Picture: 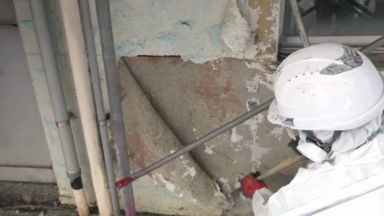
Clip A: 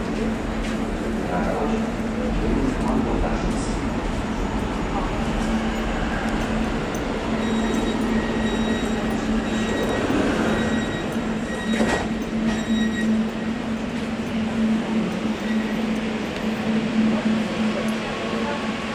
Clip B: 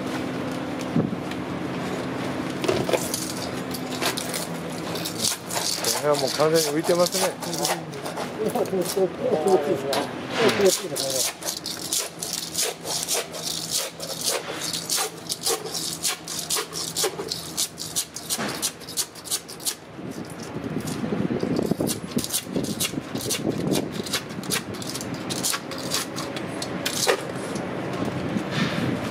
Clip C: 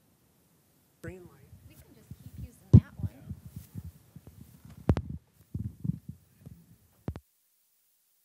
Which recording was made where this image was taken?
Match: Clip B